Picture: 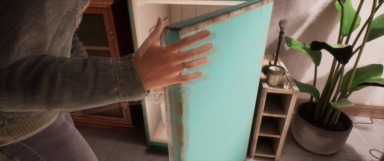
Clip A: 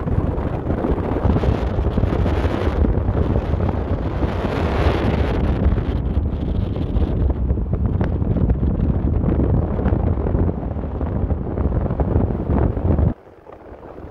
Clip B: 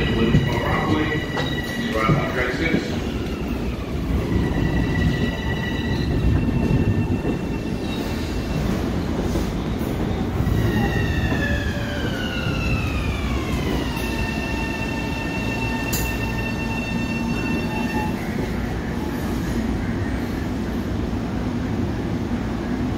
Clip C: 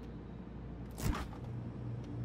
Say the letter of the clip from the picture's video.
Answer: C